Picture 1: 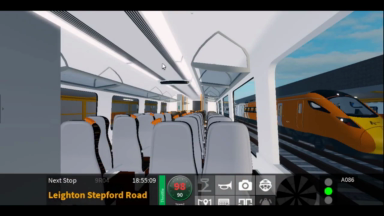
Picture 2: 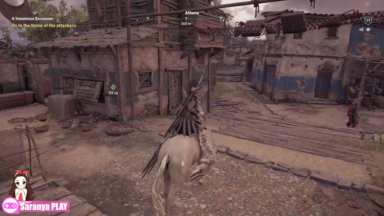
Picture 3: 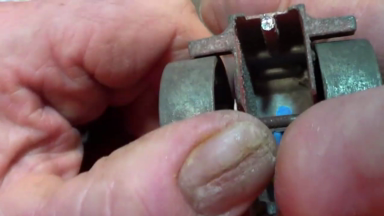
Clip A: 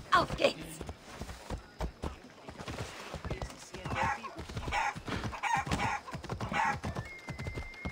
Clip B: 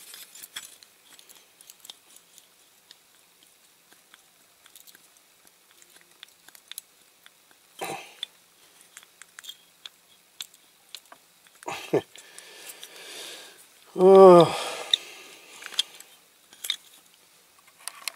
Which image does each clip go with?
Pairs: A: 2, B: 3